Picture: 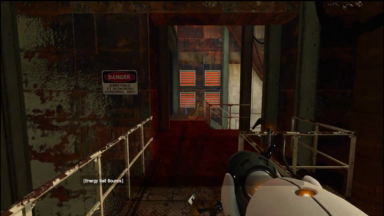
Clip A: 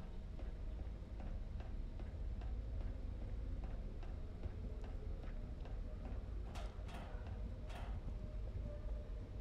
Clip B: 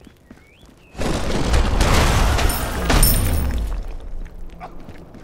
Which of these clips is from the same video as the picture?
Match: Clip A